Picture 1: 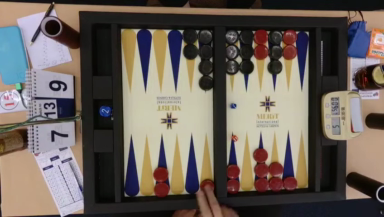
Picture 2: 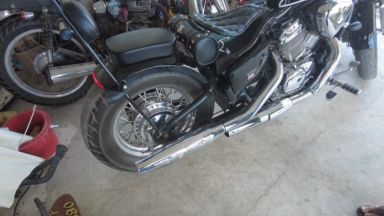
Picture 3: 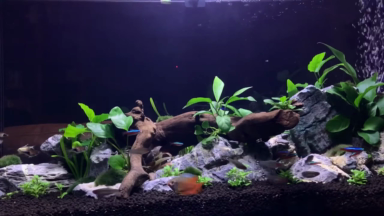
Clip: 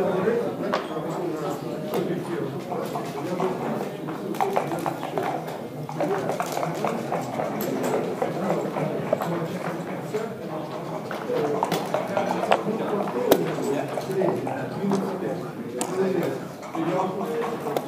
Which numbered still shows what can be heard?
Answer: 1